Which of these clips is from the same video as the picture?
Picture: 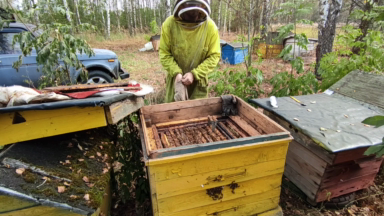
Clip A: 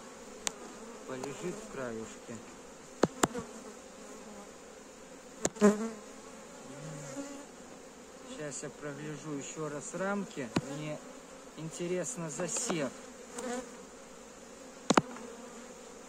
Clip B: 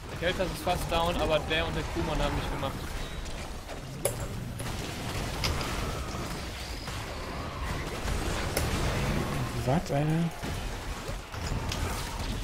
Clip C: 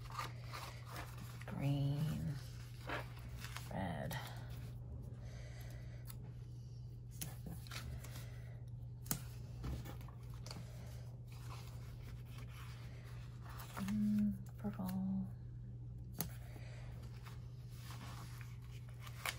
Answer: A